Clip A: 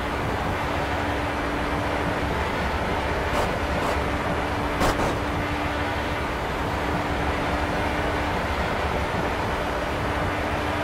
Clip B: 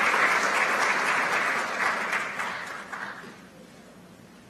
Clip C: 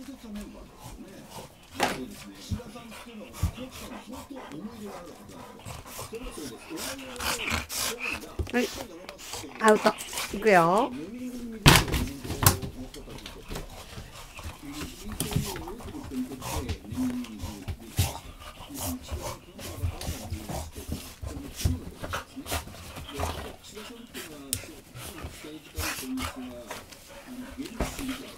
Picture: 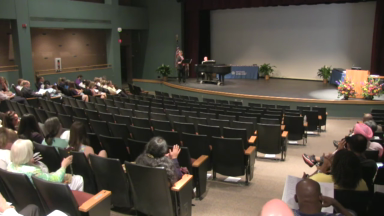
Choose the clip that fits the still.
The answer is B